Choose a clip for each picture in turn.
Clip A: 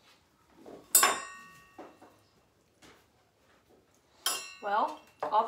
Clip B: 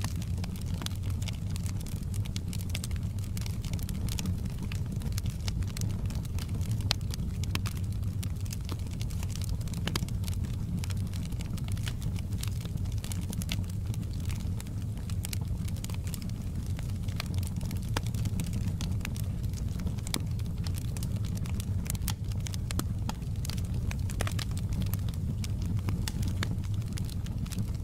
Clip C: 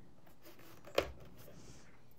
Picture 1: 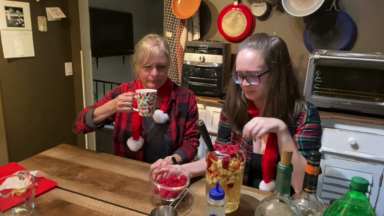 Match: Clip A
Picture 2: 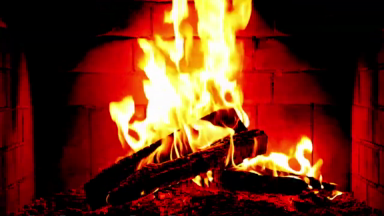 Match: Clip B